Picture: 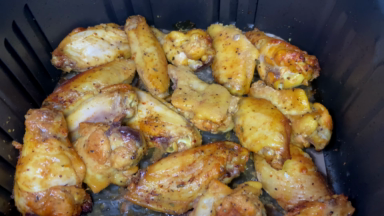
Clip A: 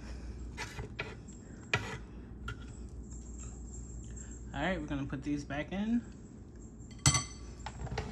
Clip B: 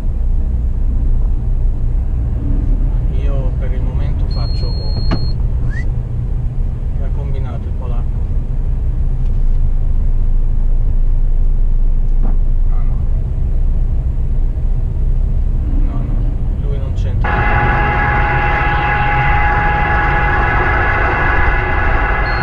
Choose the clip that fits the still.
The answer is A